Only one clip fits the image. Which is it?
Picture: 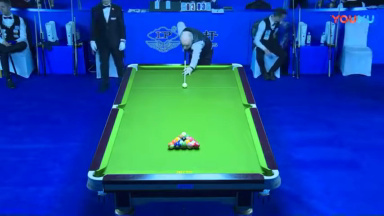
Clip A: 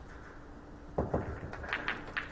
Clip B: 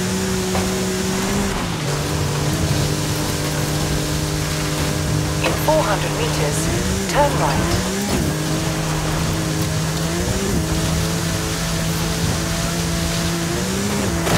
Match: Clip A